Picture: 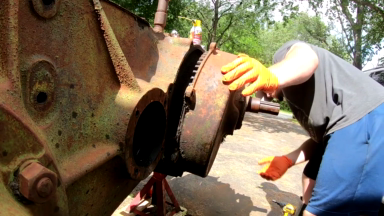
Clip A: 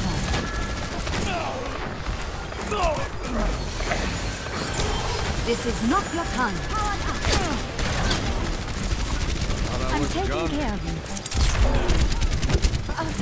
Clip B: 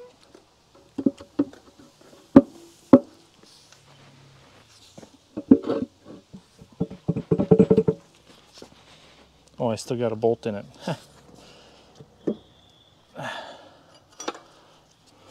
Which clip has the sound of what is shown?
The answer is B